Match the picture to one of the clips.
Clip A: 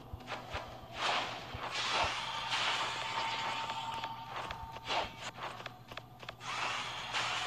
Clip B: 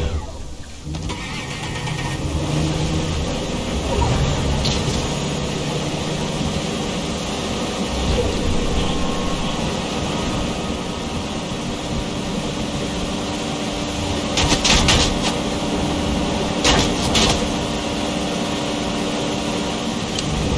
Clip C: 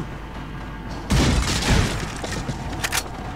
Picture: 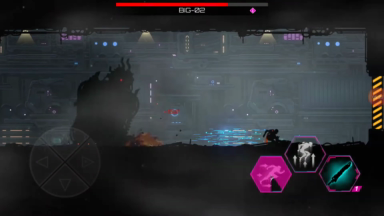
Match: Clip A